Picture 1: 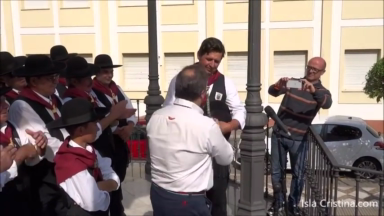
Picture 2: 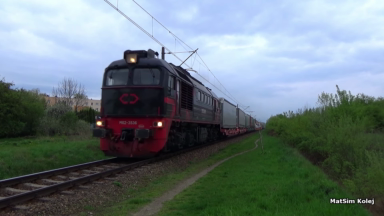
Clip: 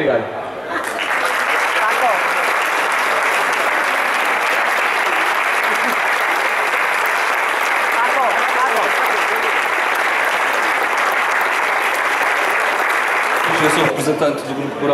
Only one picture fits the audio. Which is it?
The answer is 1